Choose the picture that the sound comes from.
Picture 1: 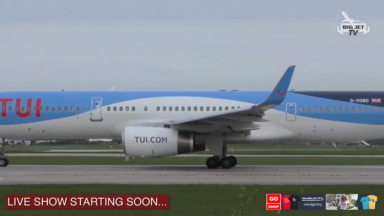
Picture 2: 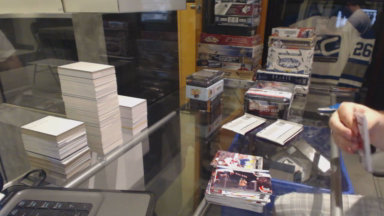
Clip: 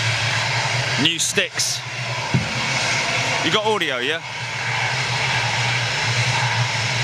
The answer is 1